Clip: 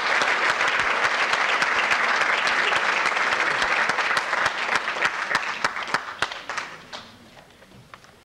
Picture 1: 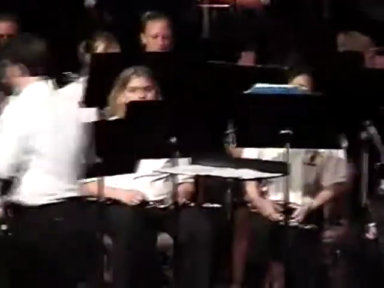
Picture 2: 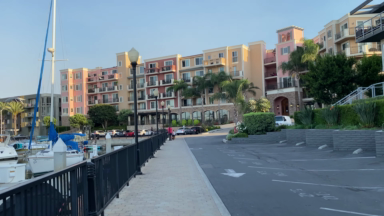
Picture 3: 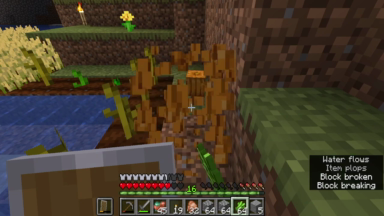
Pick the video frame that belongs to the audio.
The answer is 1